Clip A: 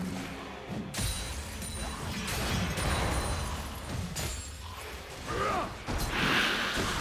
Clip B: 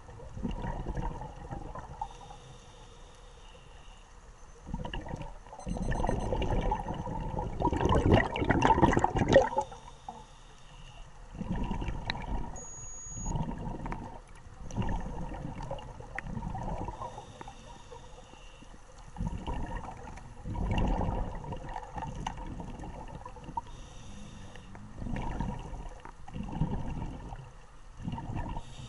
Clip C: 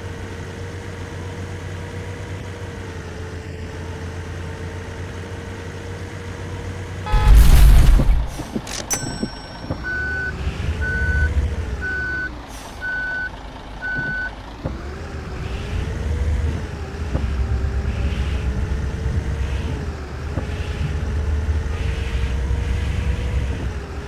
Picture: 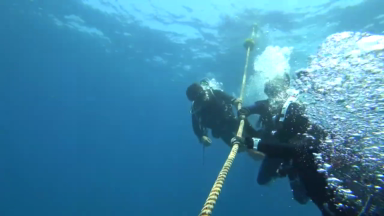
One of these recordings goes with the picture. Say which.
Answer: B